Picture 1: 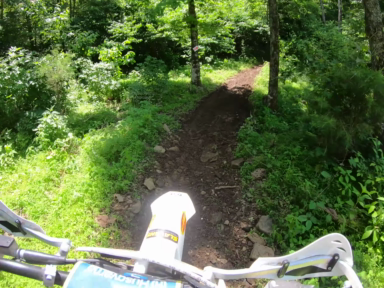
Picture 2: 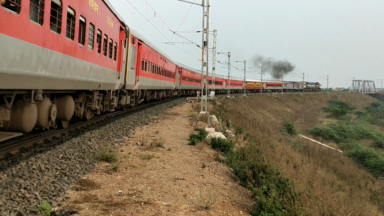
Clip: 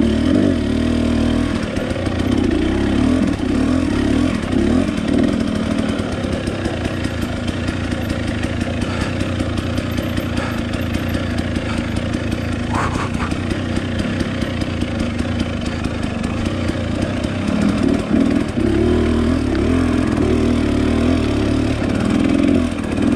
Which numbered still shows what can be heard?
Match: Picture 1